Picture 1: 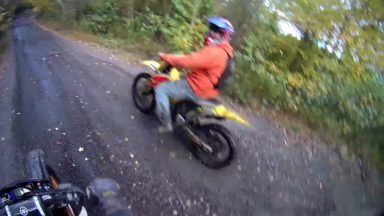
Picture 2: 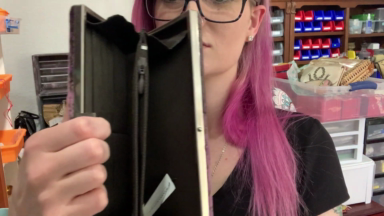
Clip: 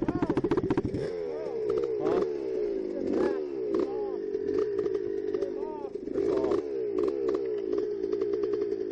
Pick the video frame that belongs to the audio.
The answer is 1